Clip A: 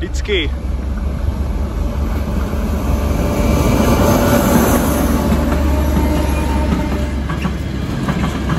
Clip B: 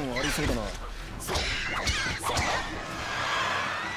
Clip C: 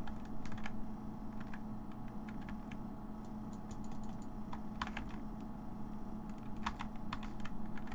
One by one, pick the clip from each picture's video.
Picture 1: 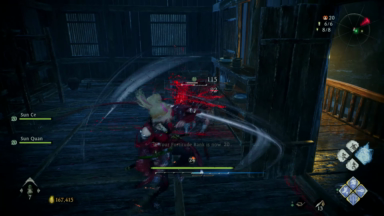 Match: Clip B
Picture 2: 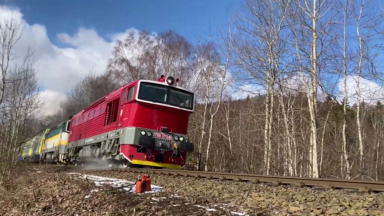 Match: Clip A